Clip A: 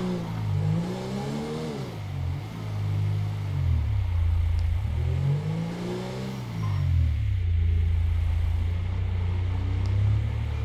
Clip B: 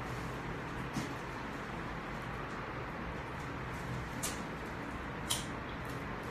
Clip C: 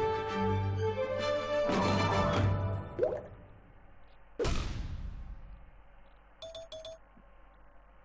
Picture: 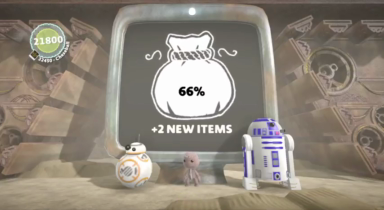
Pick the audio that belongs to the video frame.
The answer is C